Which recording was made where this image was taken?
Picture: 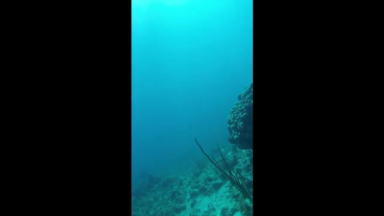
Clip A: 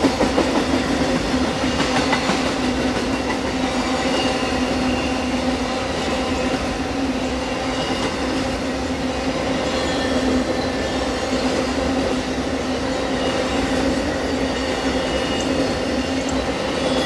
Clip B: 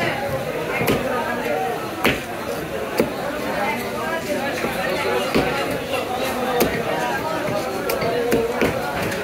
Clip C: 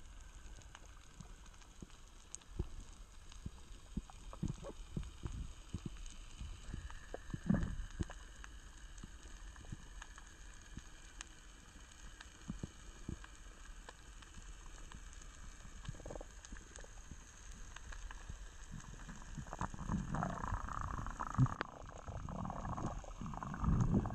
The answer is C